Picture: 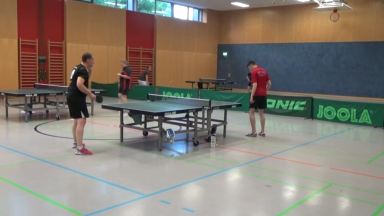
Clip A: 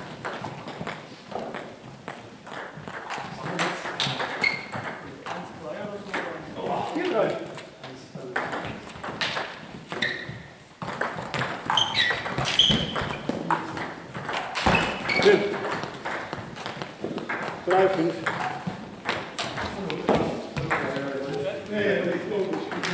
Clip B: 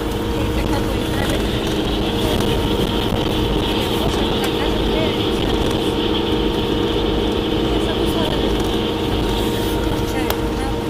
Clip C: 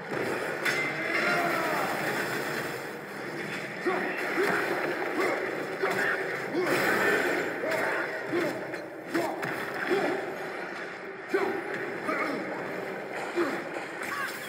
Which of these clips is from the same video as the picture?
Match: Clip A